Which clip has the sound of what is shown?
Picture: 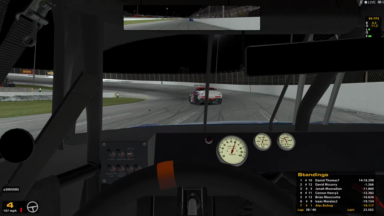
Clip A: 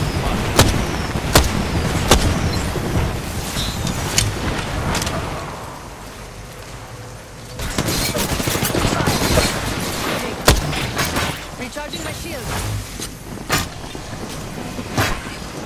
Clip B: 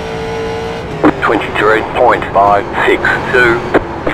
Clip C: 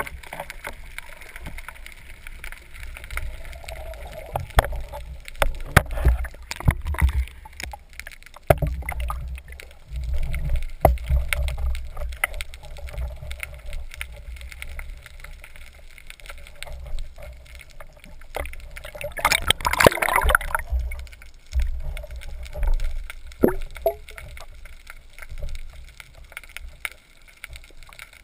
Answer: B